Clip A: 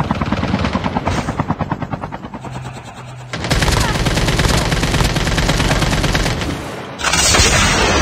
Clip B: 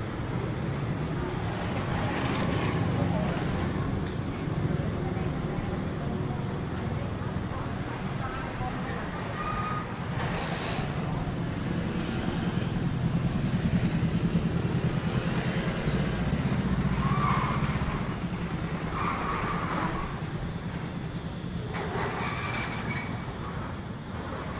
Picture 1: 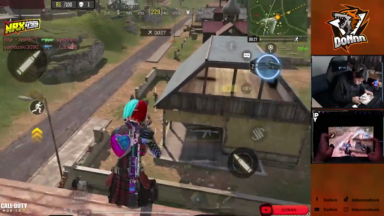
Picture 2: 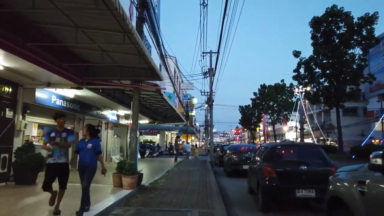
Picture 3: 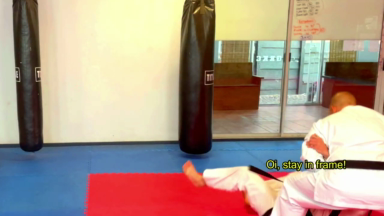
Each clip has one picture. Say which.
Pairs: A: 1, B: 2